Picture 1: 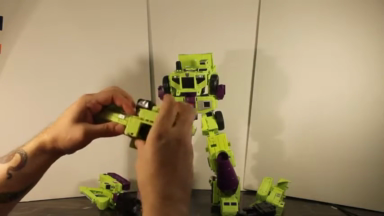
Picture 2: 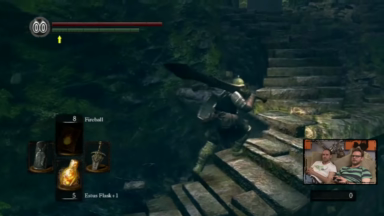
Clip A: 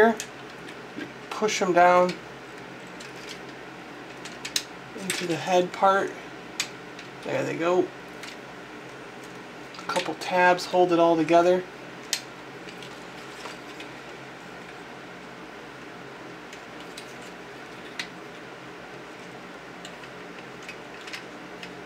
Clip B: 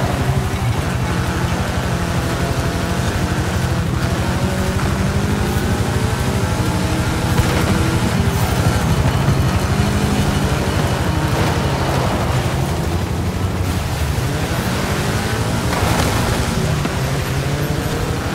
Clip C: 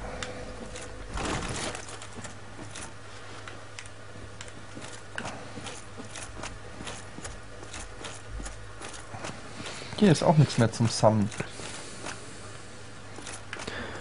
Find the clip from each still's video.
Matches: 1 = A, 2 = C